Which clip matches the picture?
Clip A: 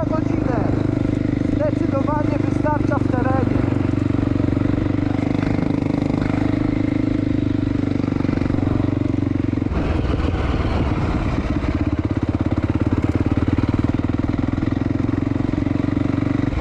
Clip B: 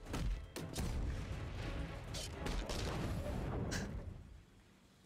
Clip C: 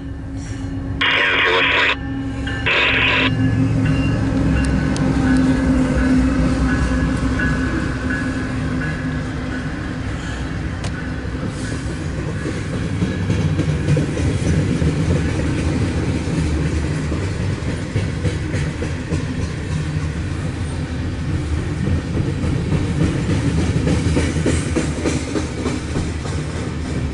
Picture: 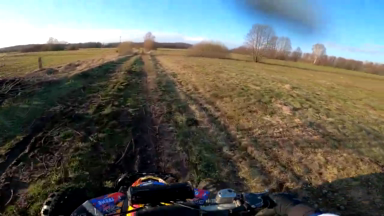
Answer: A